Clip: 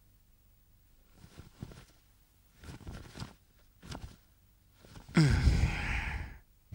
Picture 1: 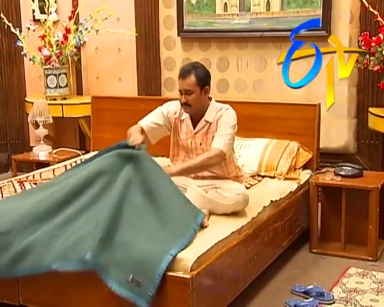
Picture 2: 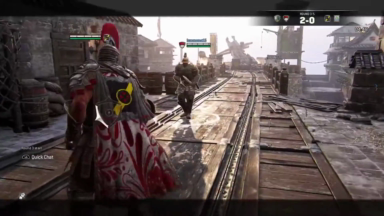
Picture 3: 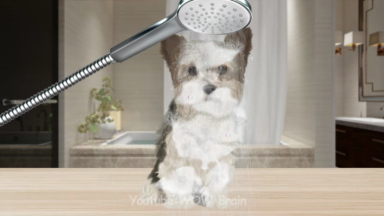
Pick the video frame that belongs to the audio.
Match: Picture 1